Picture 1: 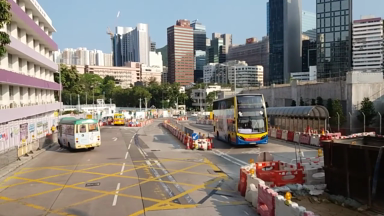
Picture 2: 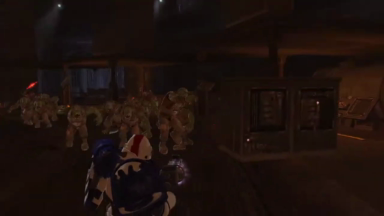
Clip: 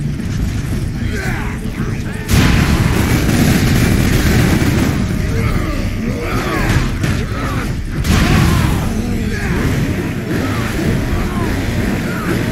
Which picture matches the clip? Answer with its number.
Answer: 2